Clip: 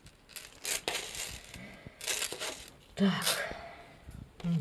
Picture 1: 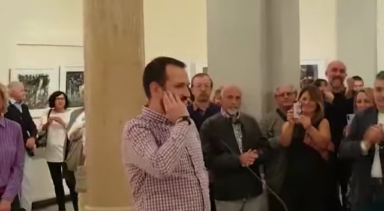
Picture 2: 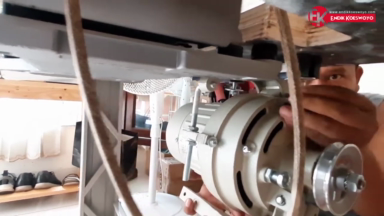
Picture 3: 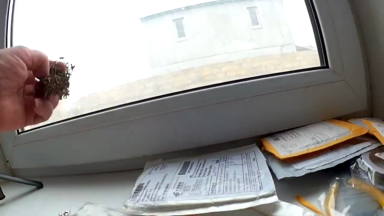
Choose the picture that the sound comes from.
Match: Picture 3